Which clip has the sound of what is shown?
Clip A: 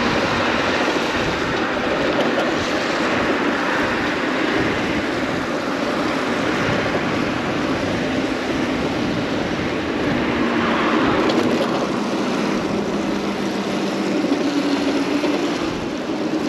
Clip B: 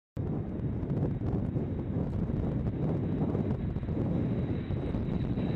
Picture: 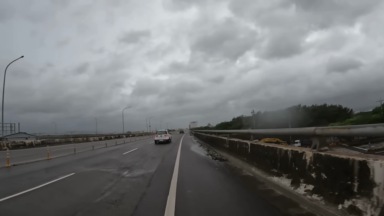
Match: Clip A